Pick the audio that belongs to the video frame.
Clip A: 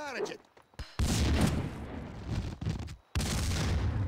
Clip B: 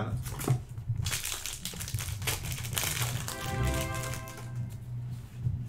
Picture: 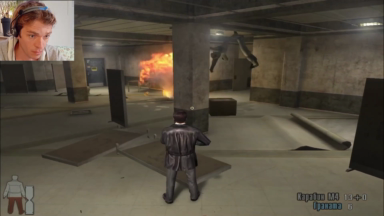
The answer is A